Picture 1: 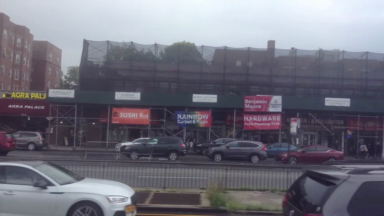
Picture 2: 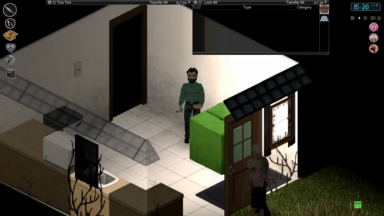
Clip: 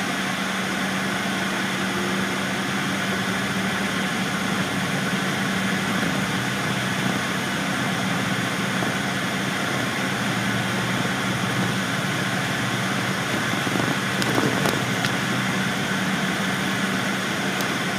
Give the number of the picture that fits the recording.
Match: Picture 1